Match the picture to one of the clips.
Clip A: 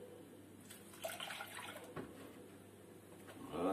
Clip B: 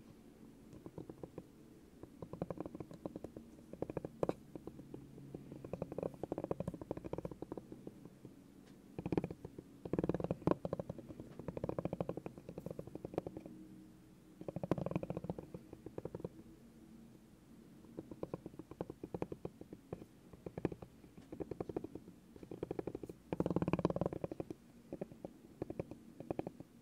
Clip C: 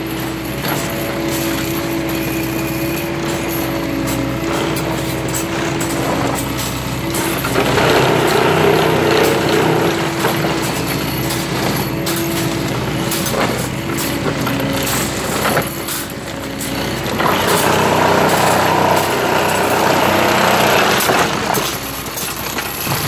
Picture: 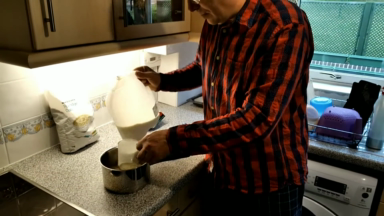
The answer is A